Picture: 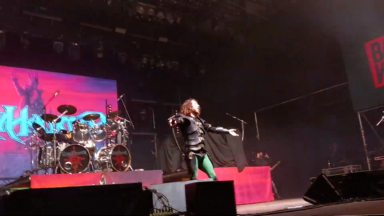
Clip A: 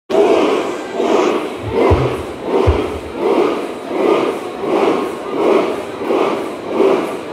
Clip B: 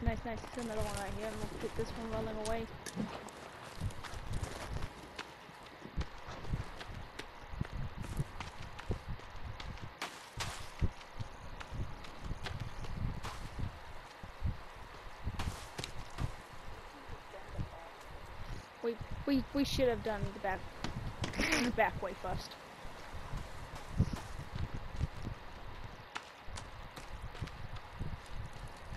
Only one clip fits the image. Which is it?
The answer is A